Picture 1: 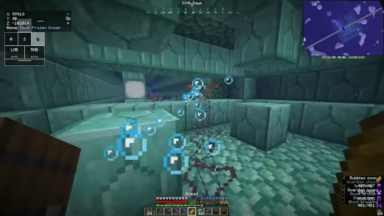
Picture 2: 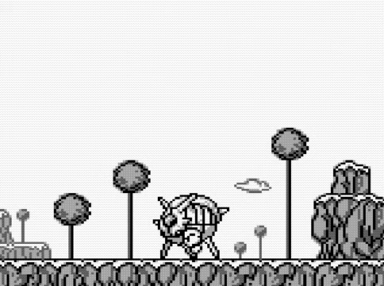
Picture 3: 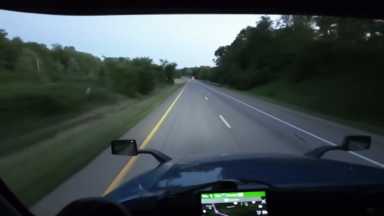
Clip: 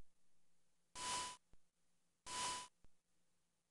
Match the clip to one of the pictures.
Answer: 2